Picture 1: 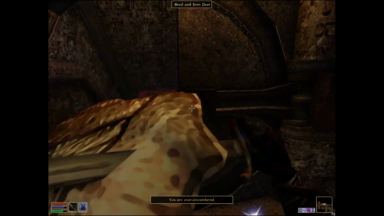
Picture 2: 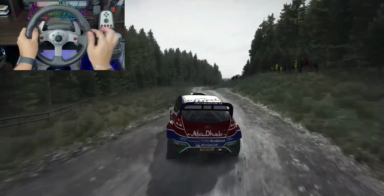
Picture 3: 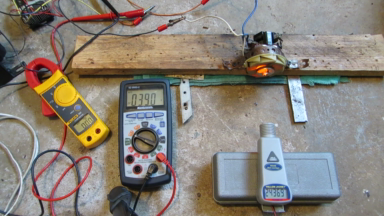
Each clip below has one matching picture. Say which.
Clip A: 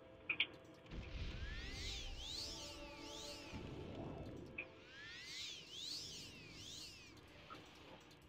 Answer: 1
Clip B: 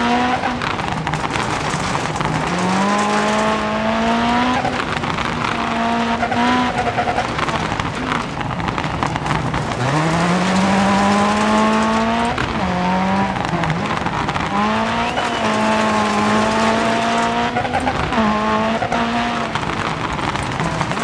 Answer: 2